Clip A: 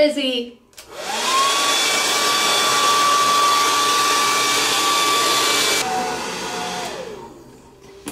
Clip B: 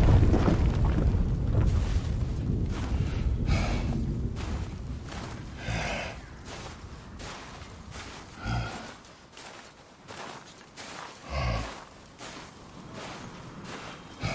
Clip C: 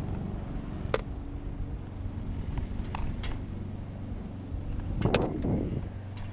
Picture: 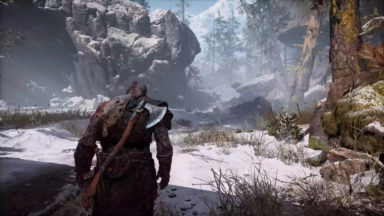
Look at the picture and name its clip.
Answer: B